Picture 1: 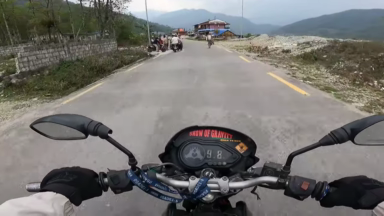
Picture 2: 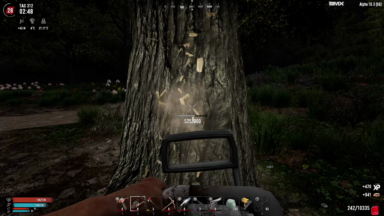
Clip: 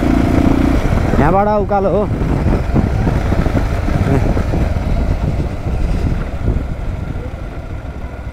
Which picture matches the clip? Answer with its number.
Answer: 1